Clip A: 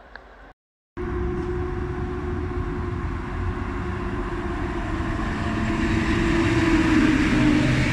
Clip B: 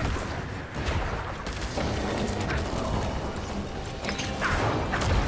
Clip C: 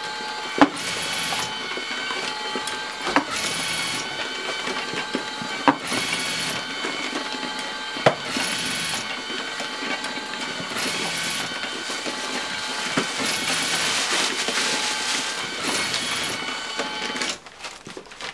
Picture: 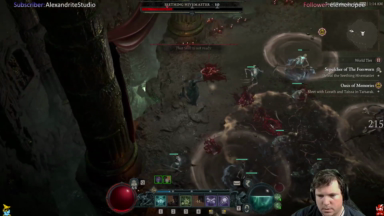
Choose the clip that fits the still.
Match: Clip B